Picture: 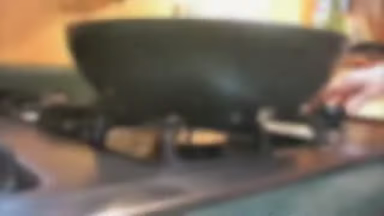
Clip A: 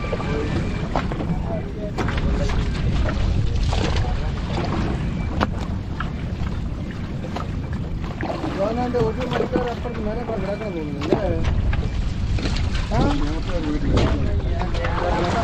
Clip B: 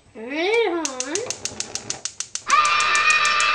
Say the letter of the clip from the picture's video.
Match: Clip B